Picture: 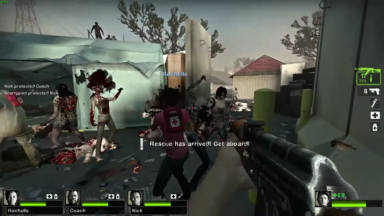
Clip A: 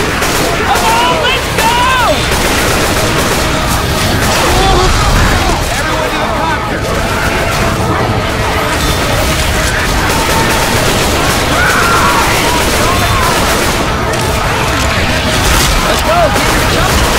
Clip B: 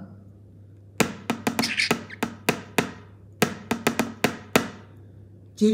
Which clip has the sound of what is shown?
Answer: A